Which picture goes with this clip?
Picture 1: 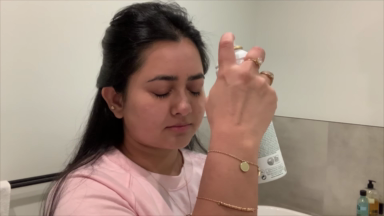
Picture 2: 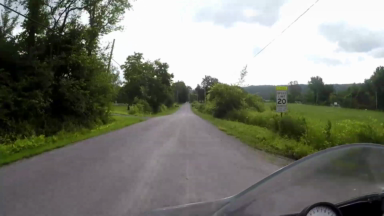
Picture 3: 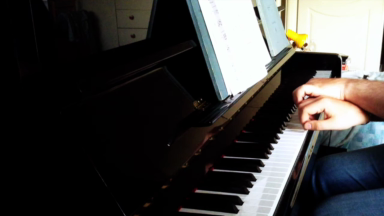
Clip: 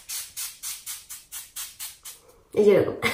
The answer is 1